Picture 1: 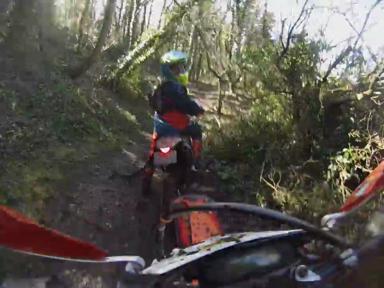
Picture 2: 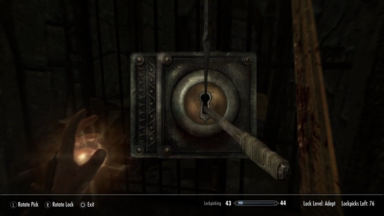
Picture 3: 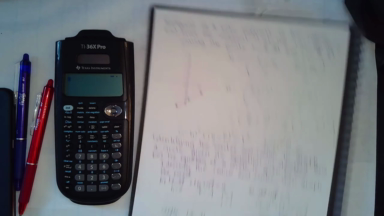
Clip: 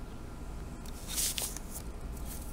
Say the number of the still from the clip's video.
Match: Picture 3